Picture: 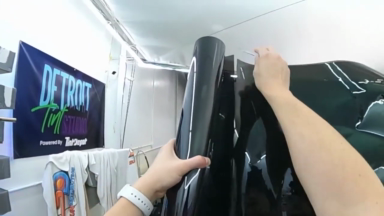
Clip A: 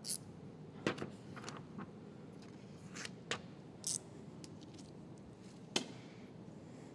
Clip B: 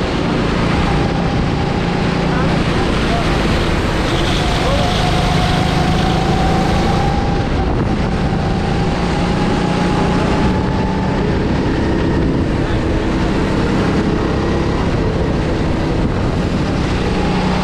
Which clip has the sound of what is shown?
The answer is A